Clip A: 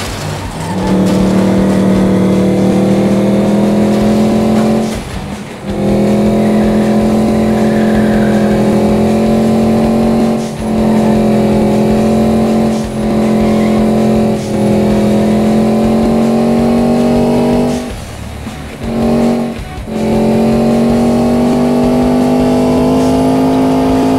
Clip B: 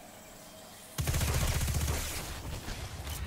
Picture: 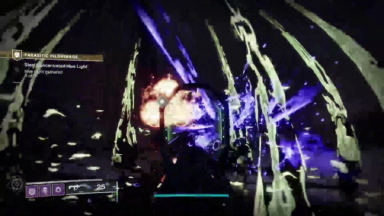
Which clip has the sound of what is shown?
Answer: B